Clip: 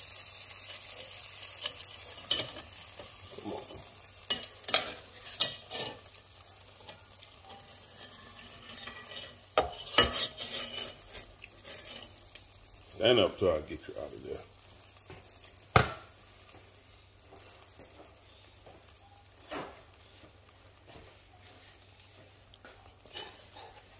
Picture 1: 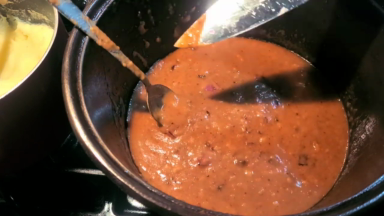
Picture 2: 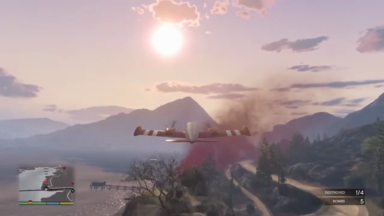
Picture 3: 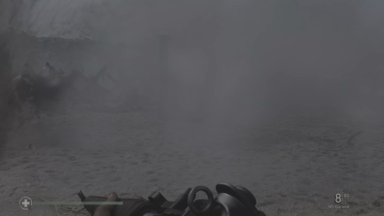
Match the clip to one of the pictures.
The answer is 1